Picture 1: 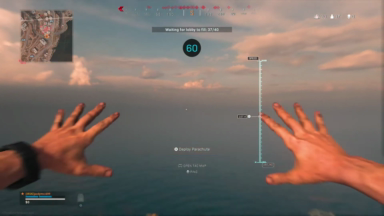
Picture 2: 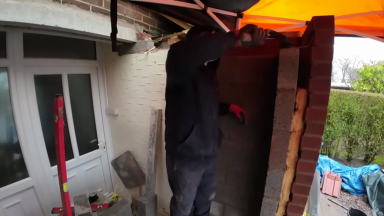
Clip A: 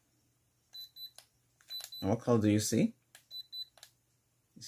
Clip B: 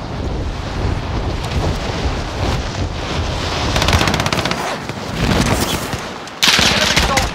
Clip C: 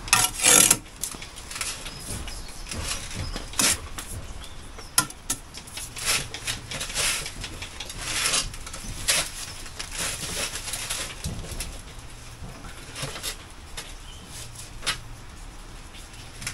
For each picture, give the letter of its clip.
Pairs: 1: B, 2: C